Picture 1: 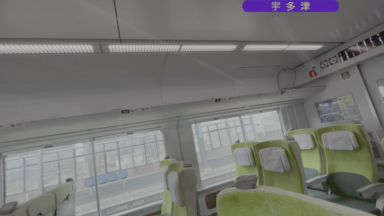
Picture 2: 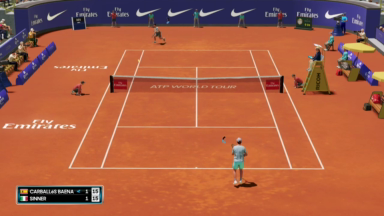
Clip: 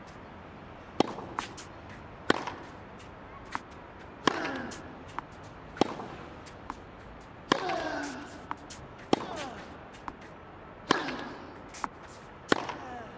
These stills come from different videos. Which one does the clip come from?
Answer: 2